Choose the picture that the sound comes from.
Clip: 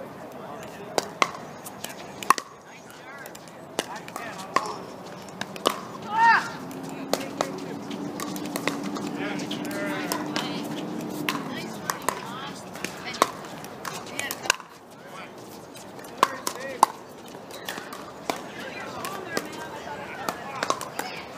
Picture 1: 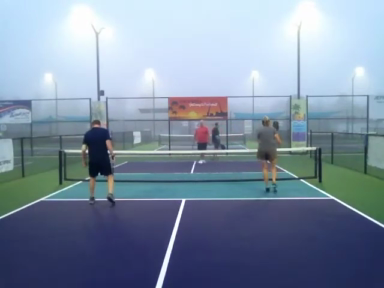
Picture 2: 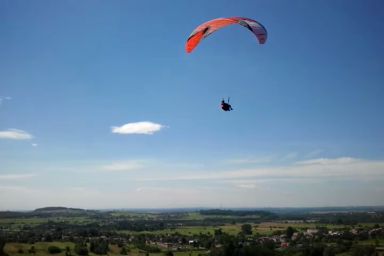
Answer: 1